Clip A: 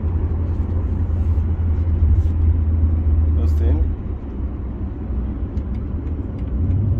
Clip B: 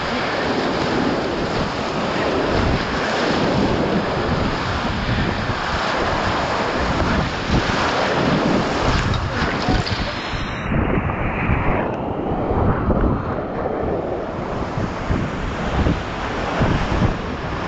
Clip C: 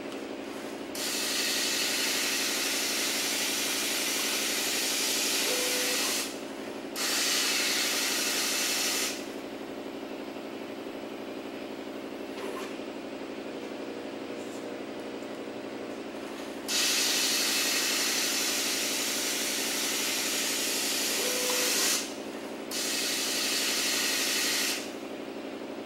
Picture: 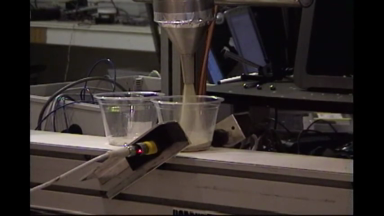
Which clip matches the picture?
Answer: C